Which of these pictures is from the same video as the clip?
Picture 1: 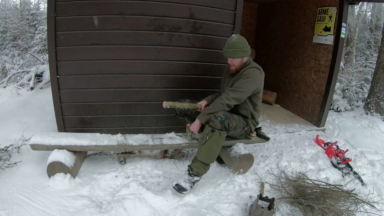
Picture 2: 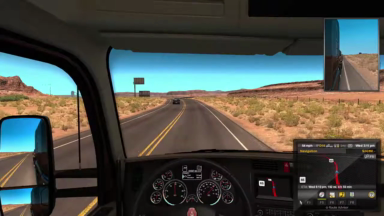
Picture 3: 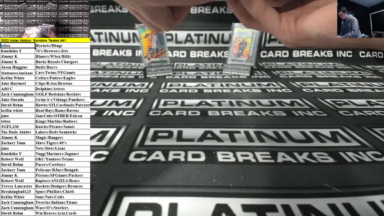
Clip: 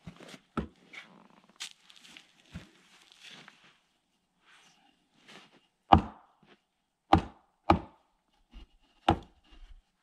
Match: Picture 1